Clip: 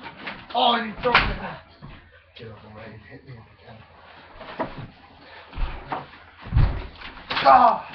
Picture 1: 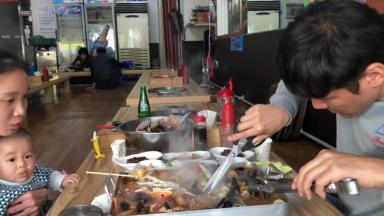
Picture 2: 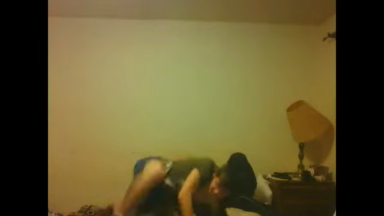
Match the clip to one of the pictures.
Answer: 2